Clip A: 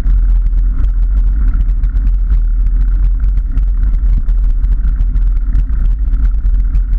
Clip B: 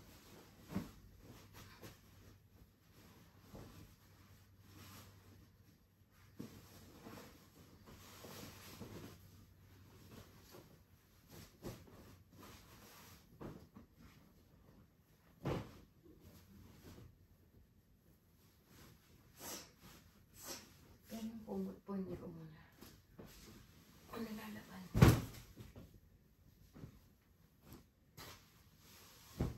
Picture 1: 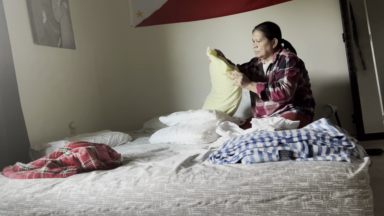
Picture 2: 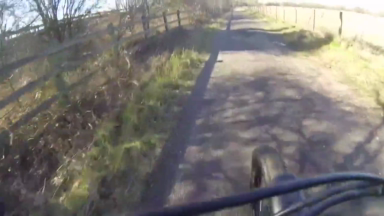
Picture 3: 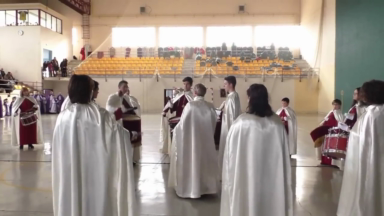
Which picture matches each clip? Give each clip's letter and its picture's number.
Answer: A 2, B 1